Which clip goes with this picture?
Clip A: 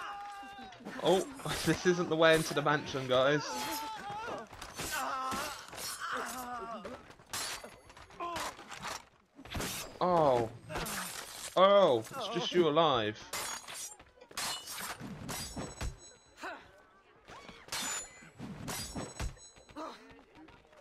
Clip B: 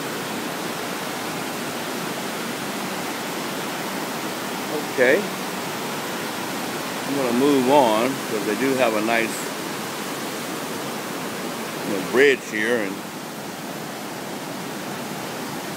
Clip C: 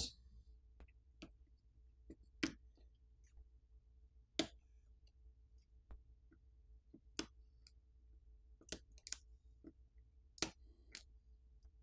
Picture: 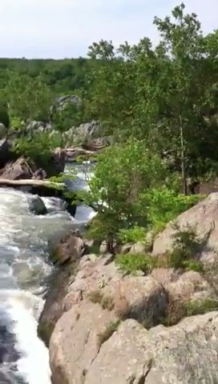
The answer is B